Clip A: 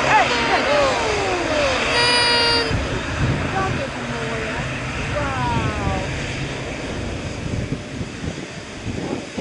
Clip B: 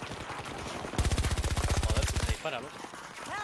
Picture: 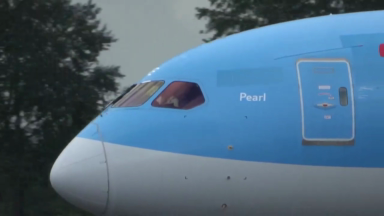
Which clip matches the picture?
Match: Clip A